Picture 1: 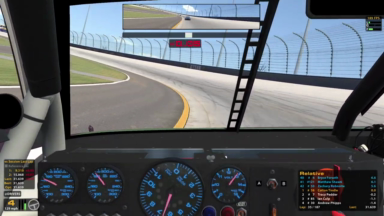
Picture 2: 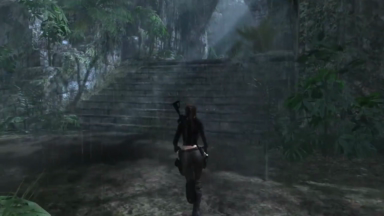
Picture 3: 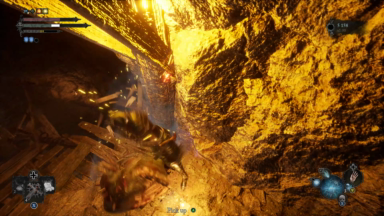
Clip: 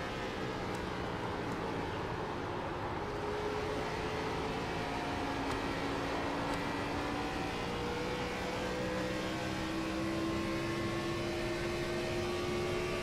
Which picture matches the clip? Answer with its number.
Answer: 1